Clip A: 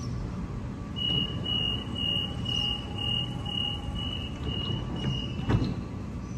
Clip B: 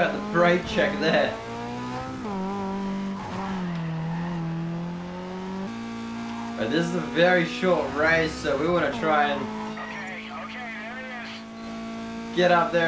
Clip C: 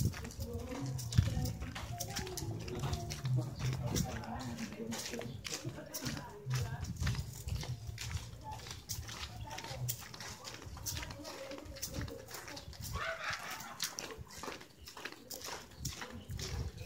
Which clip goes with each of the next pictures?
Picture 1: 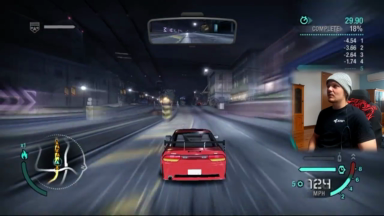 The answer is B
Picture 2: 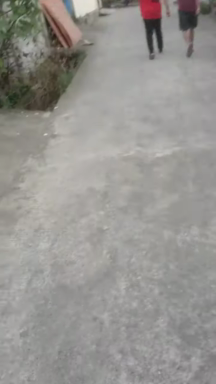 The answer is C